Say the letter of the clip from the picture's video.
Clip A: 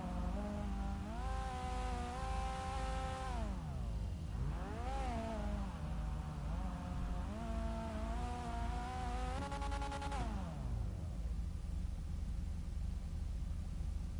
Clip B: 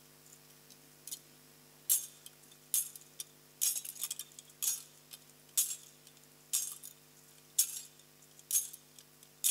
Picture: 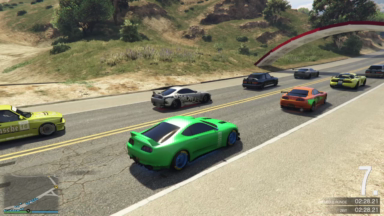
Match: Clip A